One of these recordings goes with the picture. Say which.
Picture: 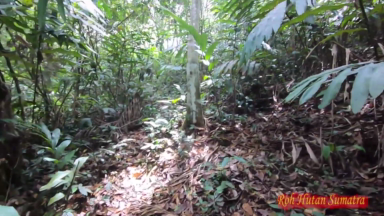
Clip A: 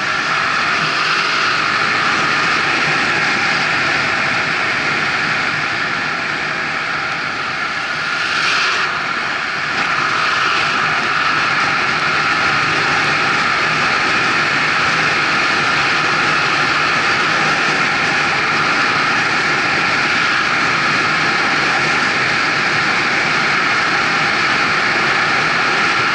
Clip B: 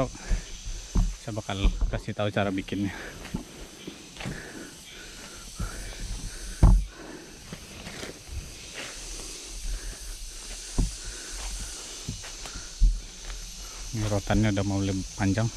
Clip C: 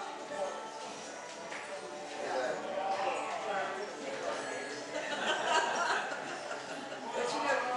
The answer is B